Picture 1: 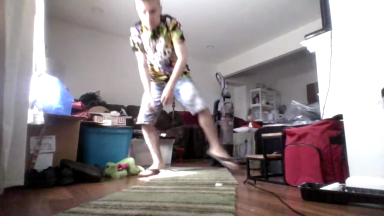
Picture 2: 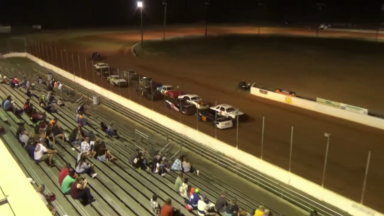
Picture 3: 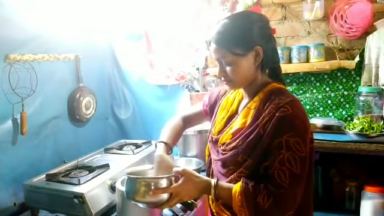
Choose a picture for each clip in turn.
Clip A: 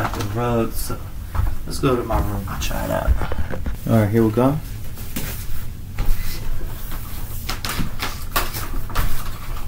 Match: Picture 1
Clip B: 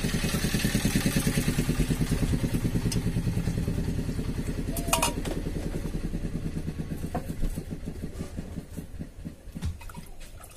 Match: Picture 3